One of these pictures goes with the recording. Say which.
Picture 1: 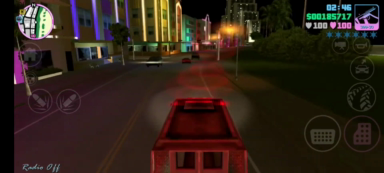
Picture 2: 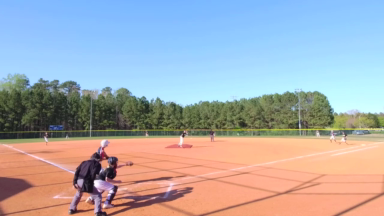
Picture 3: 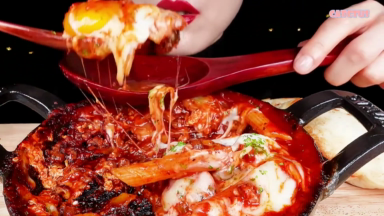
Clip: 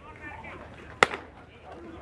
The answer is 2